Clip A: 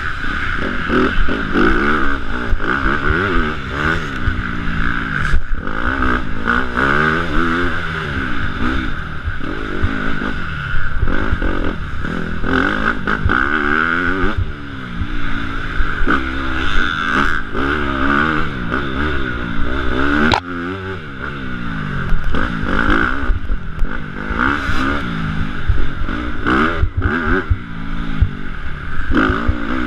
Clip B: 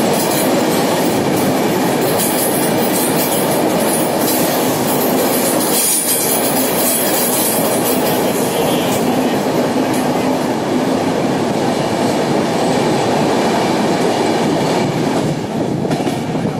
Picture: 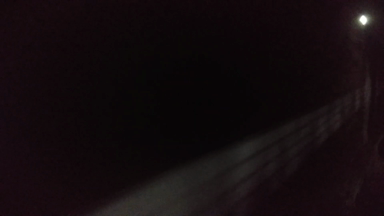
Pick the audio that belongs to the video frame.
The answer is B